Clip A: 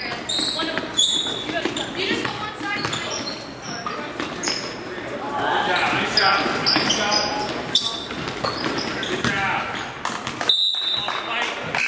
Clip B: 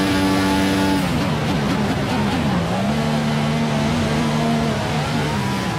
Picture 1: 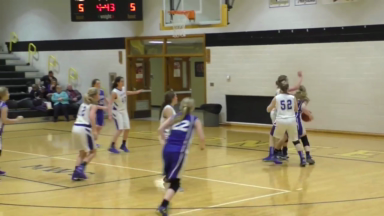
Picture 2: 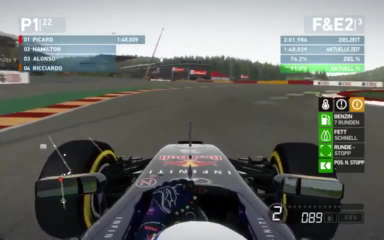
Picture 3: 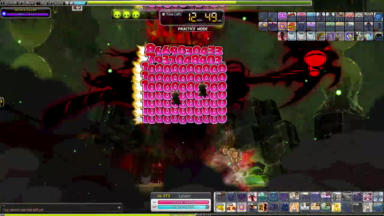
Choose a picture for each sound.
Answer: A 1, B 2